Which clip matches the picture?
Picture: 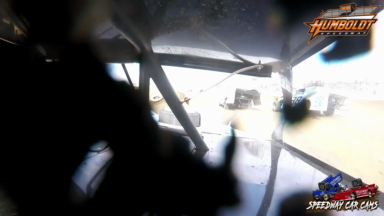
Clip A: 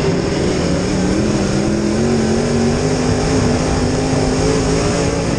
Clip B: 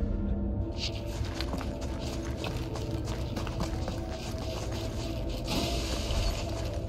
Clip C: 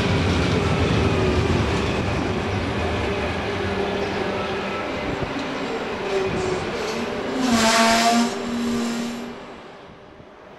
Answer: A